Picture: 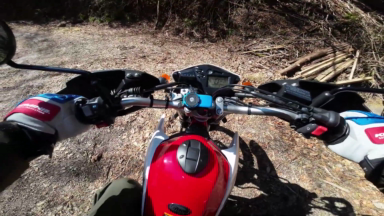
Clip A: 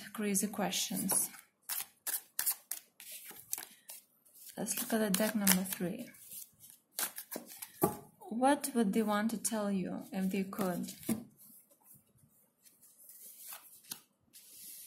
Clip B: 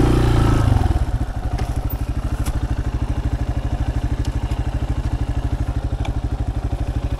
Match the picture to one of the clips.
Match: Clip B